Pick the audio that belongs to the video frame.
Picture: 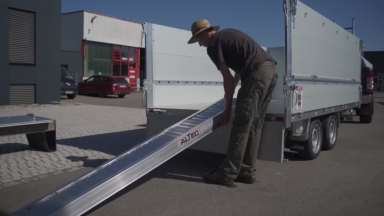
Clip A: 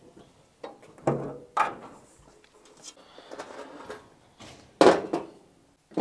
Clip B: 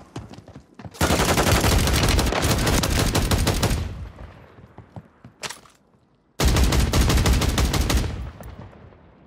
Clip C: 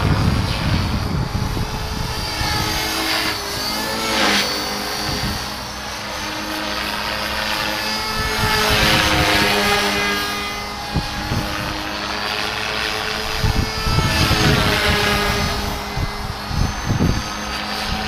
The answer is A